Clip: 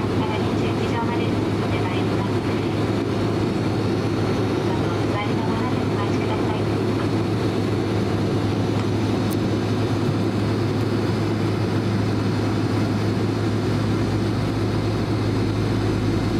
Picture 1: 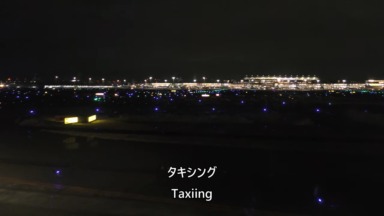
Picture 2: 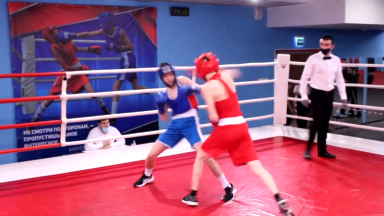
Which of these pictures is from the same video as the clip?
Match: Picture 1